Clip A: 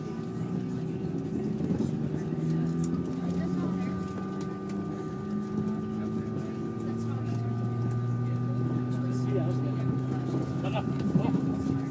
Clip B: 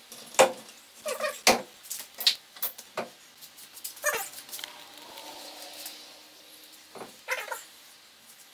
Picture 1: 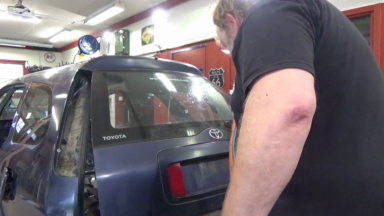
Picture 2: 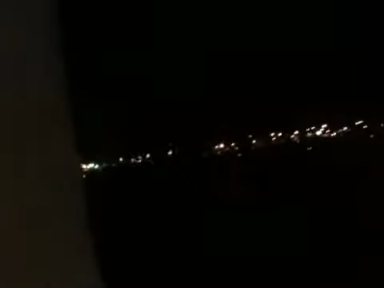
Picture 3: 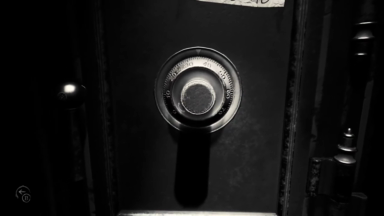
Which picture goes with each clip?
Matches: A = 2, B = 1